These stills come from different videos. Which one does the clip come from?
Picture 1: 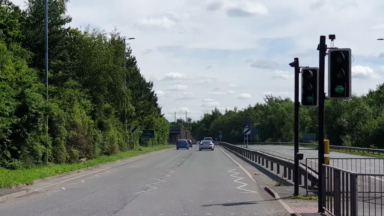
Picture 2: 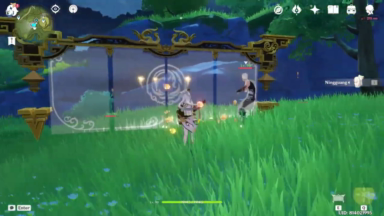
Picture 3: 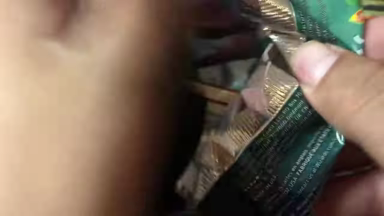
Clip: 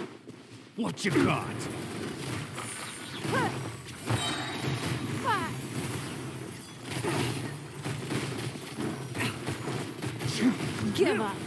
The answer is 2